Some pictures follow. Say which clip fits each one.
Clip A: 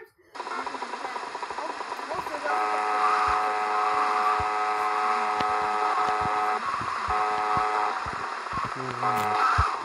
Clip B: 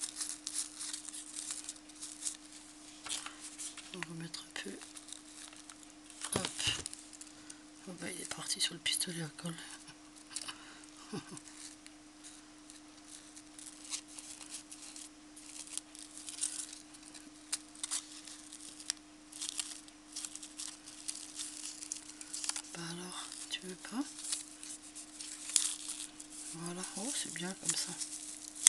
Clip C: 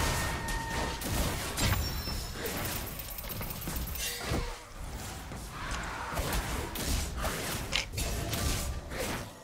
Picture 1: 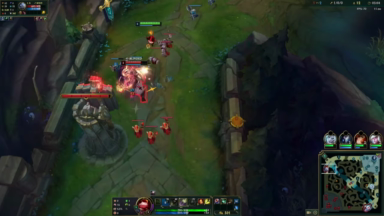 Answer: C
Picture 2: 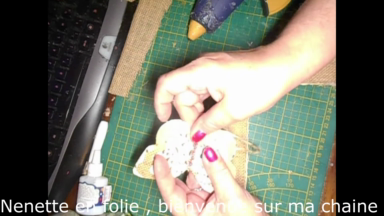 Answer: B